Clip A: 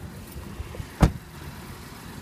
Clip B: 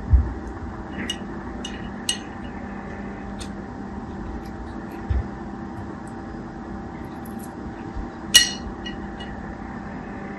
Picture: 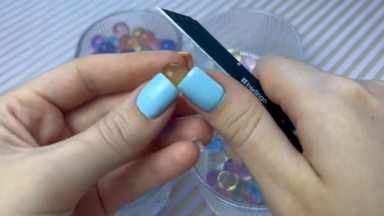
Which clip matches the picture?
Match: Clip B